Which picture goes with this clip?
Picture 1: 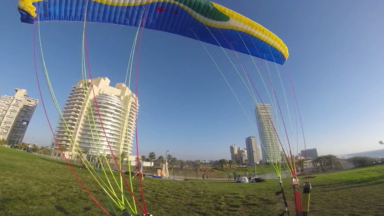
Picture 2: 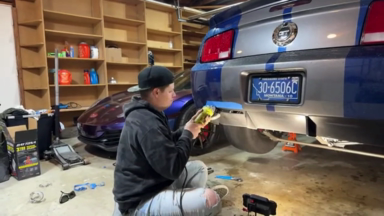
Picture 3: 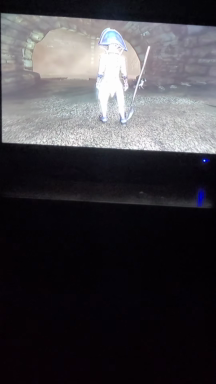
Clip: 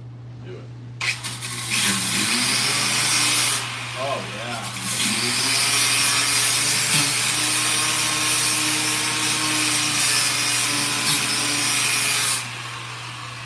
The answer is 2